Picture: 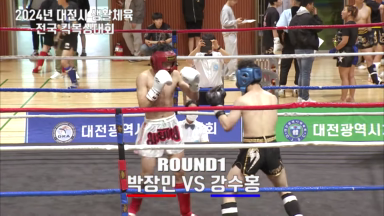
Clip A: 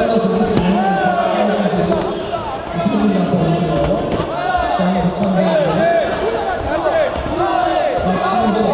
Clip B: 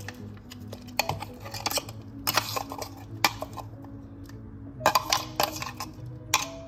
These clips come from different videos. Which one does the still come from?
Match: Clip A